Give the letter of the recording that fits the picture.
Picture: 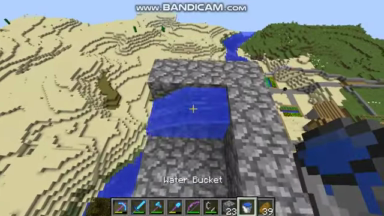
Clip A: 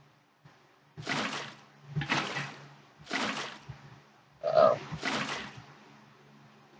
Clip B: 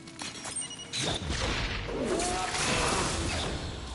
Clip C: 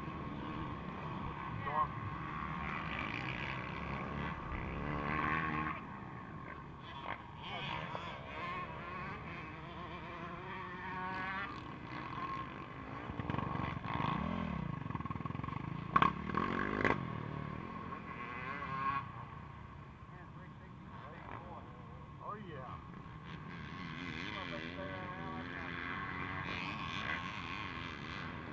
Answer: A